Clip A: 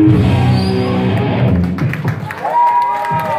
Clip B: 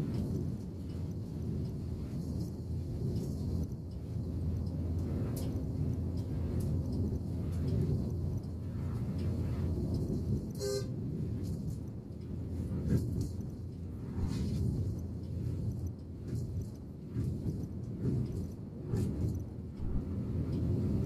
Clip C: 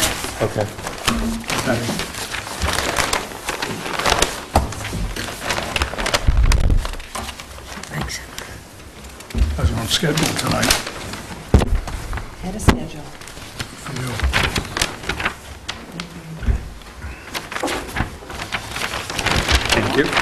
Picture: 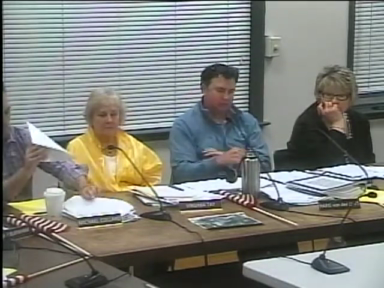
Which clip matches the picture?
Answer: C